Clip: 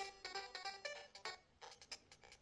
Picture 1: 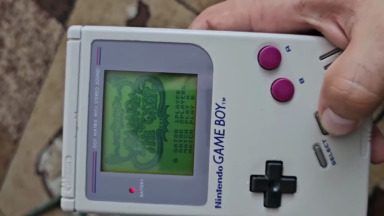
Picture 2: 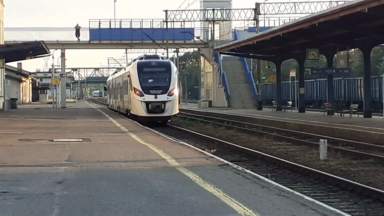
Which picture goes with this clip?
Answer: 1